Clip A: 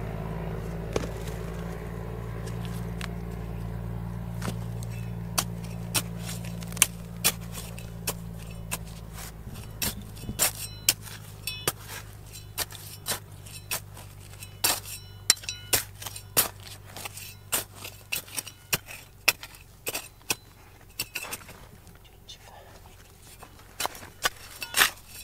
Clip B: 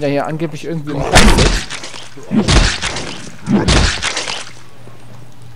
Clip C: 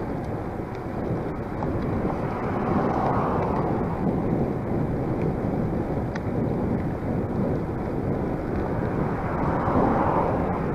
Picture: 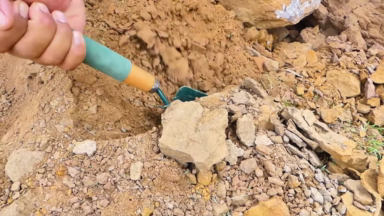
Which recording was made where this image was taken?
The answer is A